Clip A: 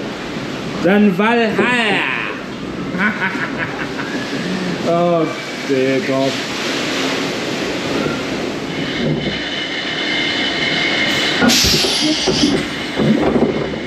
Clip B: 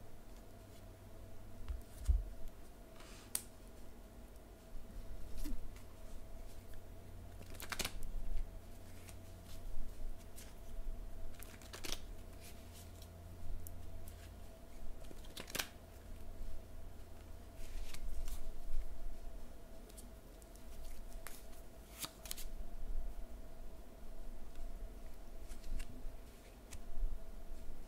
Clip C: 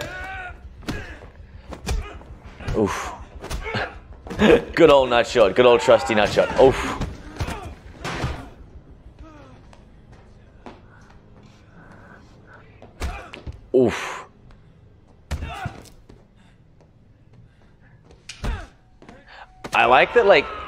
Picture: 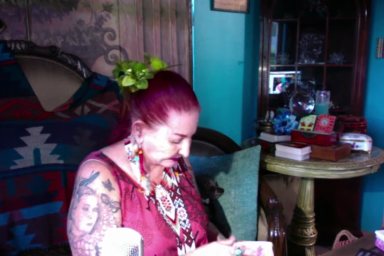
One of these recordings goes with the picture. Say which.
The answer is B